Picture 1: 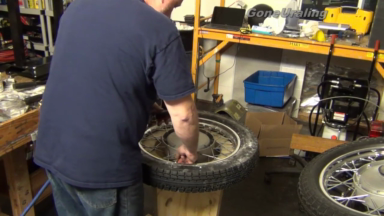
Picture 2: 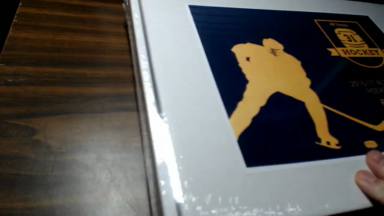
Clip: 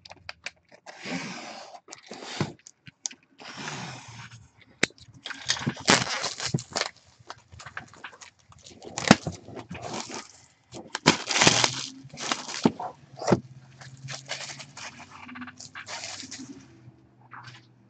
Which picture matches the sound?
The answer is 2